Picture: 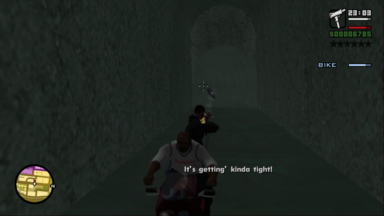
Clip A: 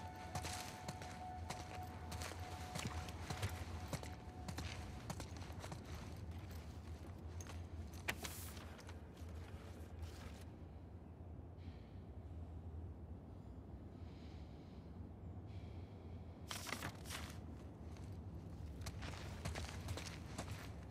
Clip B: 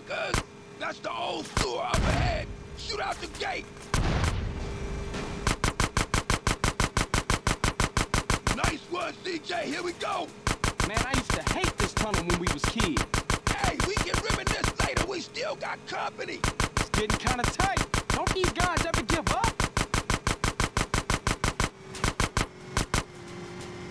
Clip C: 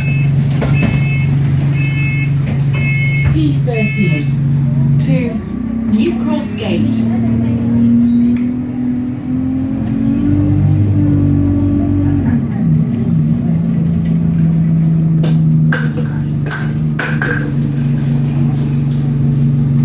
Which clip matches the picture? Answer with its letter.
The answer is B